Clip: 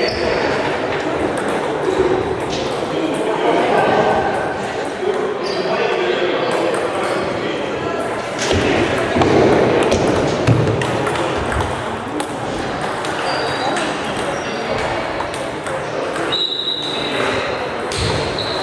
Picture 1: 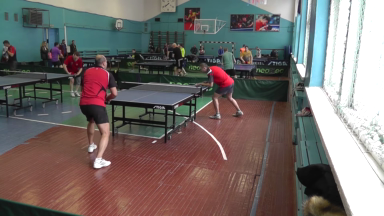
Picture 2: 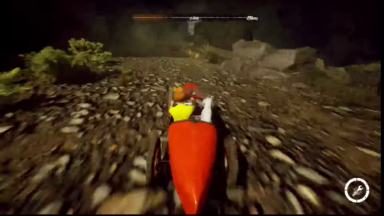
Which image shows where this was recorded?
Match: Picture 1